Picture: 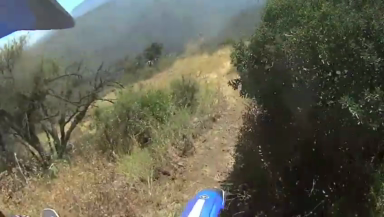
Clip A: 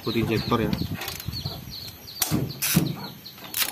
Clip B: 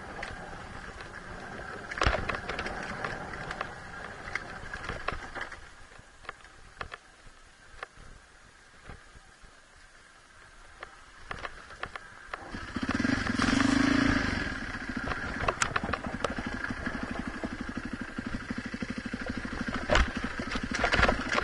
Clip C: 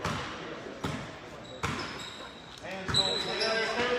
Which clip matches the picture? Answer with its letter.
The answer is B